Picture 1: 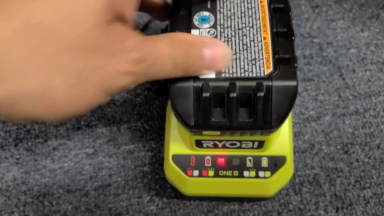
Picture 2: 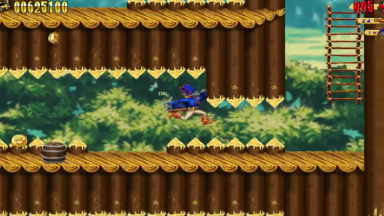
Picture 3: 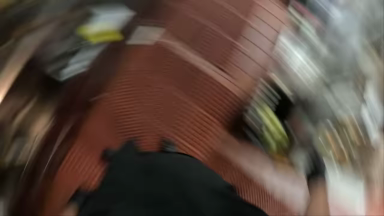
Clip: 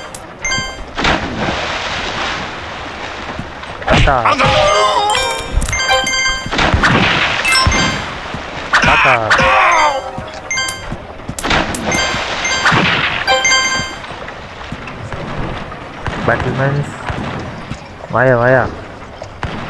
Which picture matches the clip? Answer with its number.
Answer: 2